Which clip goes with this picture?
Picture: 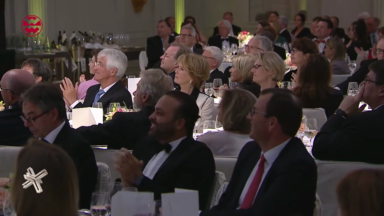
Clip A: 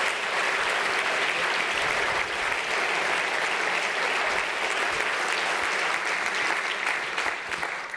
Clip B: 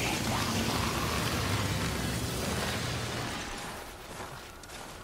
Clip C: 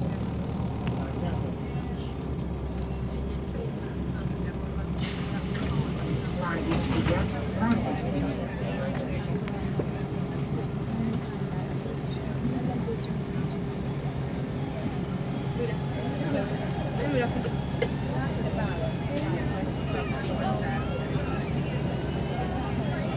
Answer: A